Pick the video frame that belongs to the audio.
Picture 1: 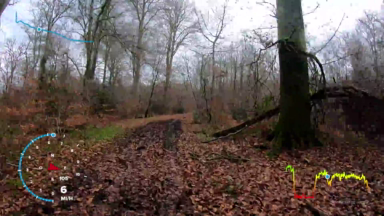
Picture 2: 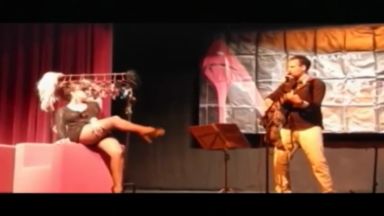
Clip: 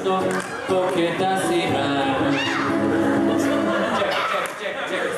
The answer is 2